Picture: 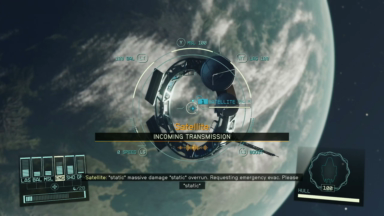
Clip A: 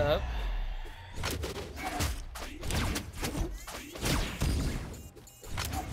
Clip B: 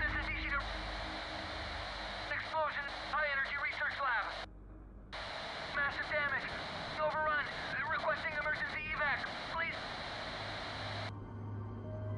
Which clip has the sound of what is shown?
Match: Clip B